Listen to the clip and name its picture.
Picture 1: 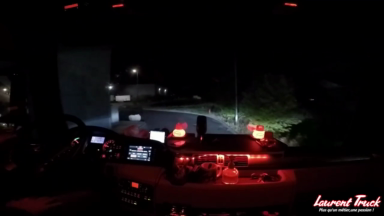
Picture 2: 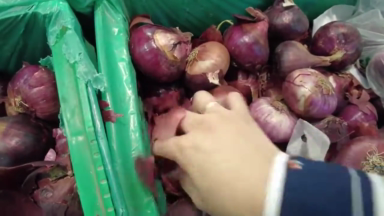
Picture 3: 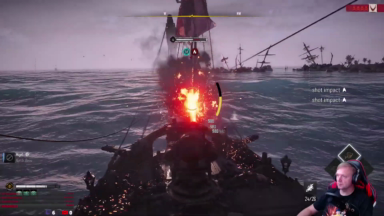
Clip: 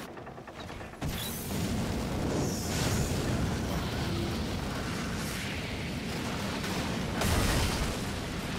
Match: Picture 3